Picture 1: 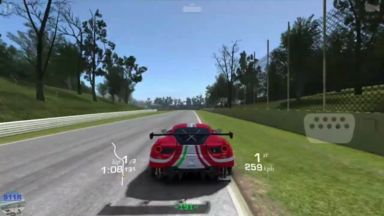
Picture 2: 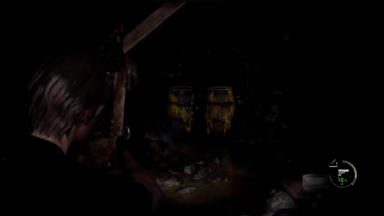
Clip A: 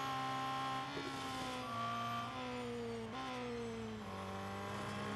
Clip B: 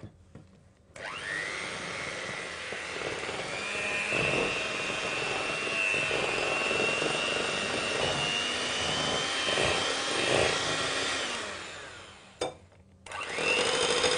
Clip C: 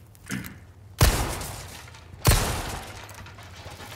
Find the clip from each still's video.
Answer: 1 A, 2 C